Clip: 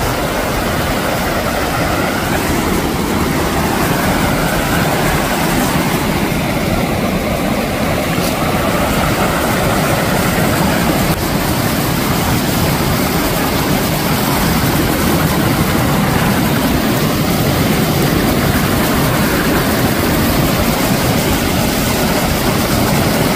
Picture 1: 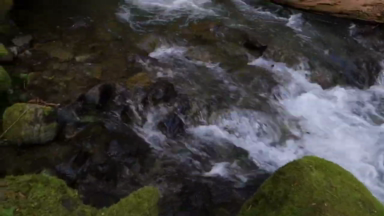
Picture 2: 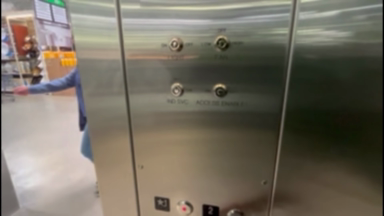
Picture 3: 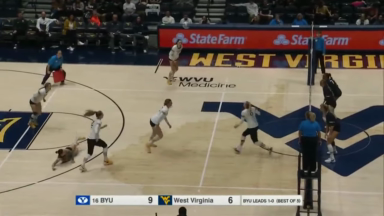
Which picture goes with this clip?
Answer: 1